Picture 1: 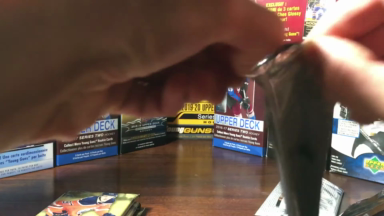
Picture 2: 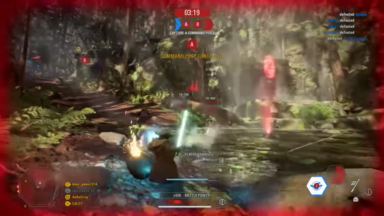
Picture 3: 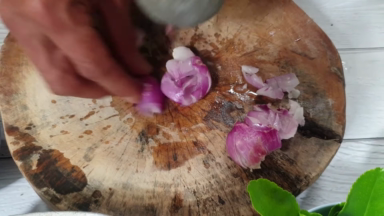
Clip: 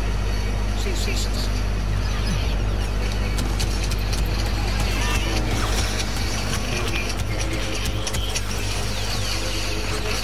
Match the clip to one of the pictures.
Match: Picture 2